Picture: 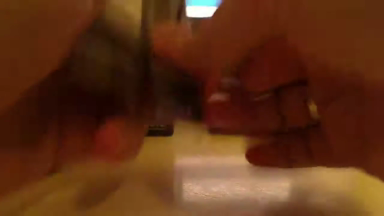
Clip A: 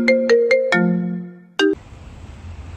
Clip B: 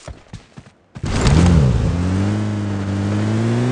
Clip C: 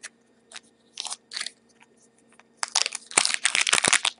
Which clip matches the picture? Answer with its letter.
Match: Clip C